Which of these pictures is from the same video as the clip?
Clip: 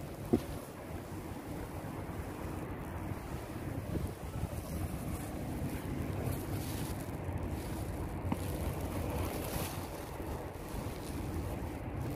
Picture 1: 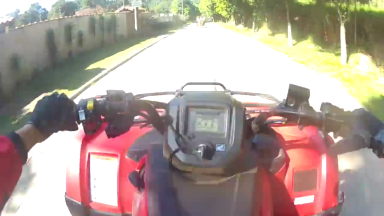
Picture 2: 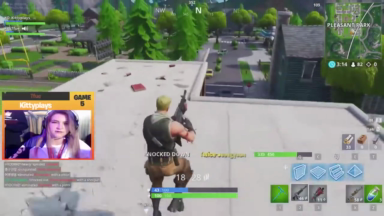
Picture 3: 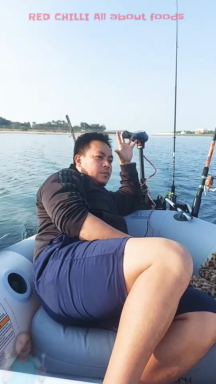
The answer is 3